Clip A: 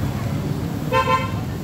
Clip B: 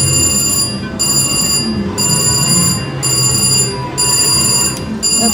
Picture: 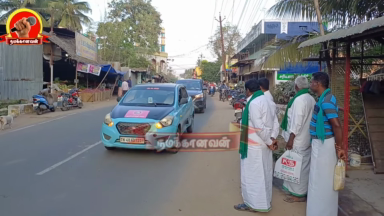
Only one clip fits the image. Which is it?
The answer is A